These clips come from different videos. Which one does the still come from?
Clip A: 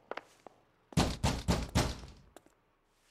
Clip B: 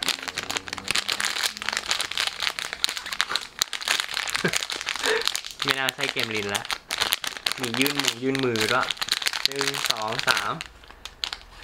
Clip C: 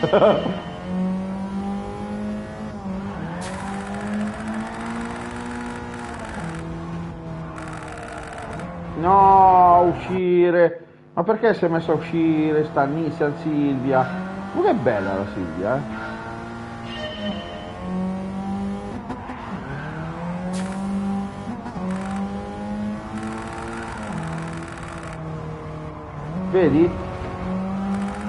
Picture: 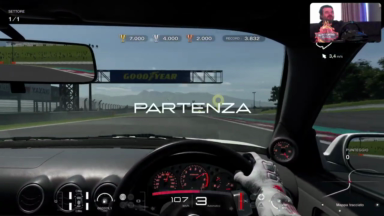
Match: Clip C